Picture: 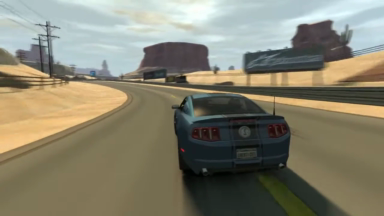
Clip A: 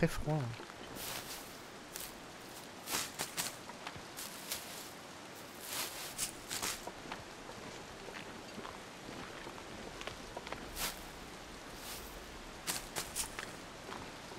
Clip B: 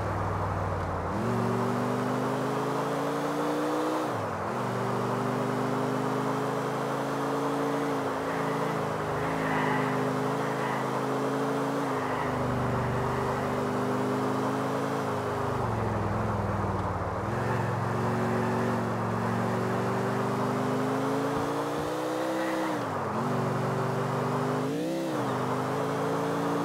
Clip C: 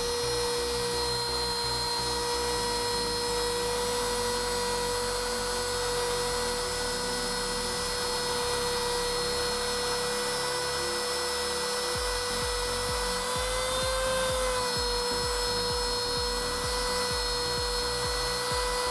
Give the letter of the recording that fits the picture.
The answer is B